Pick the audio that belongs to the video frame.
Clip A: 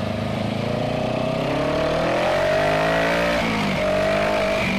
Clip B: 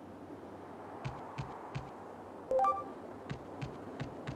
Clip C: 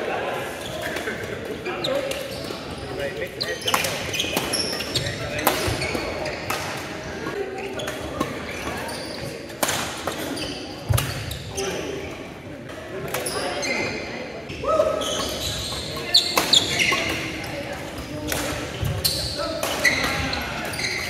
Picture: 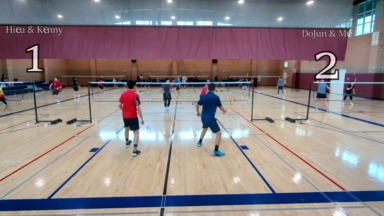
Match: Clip C